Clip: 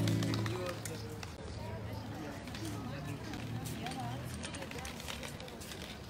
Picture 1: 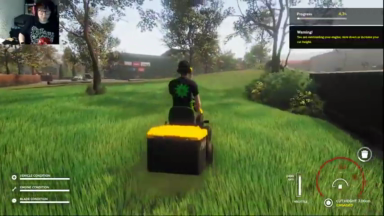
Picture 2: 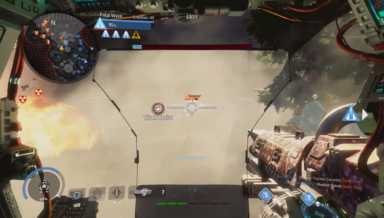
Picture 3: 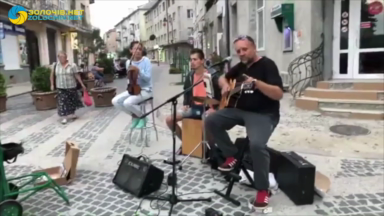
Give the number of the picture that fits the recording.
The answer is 3